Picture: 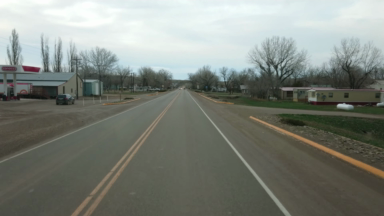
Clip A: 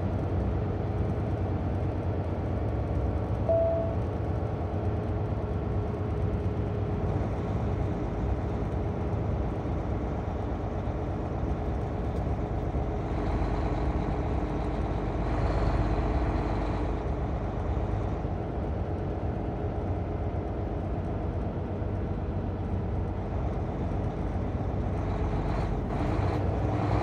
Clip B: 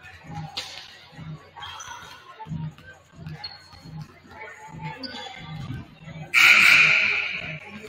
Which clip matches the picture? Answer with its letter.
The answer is A